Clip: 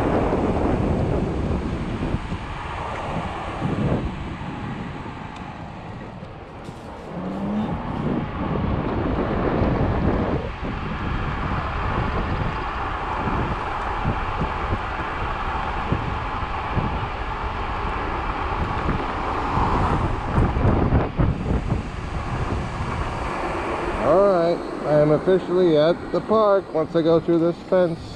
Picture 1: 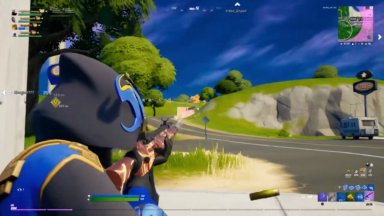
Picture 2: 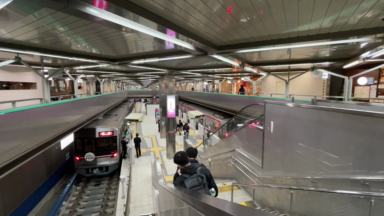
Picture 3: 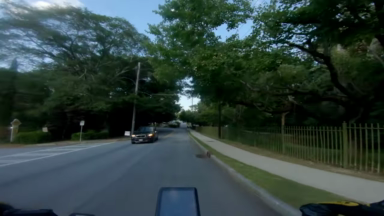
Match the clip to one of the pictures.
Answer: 3